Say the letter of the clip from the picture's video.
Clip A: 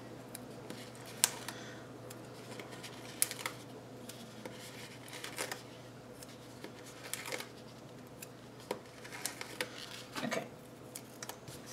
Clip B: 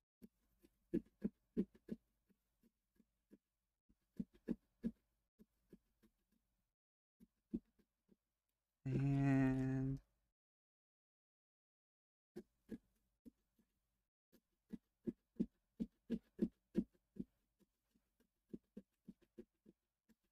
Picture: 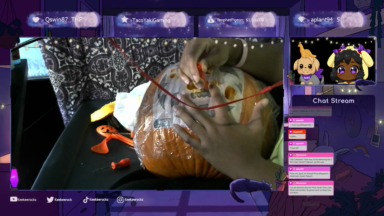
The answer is B